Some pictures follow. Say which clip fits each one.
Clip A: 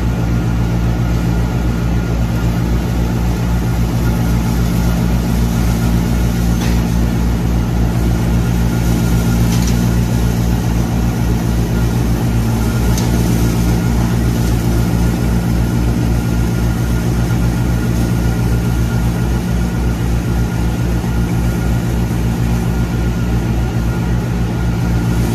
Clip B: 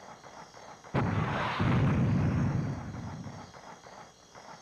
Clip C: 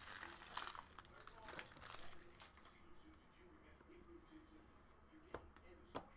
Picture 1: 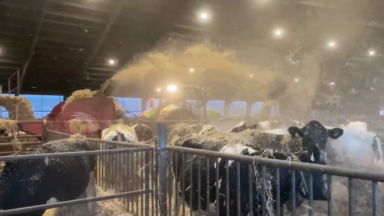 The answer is A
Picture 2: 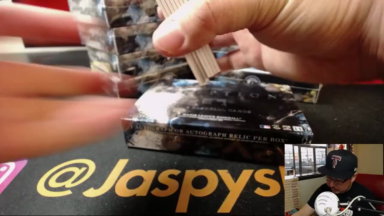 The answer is C